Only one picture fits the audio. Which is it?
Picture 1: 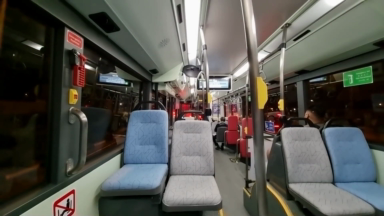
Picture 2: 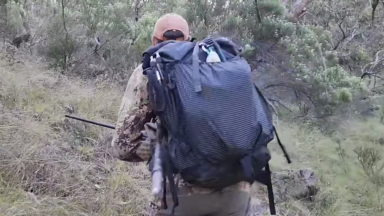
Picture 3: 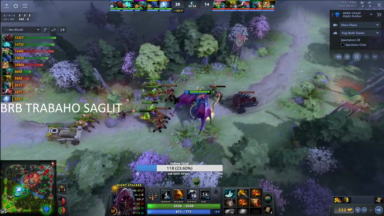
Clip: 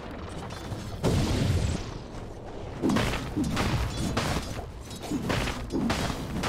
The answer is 3